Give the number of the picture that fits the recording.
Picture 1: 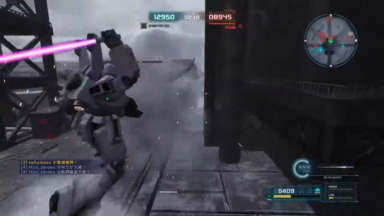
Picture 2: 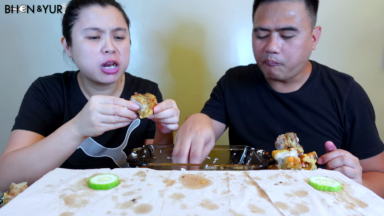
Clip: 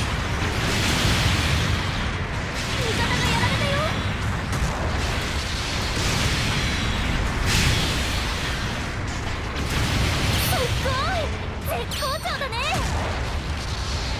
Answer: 1